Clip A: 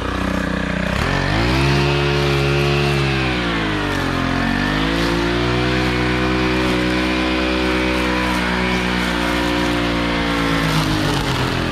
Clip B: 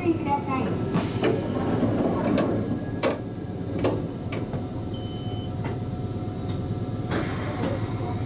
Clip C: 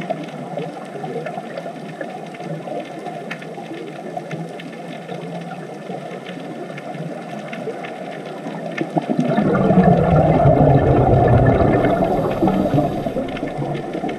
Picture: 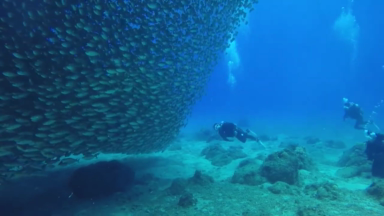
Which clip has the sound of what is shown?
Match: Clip C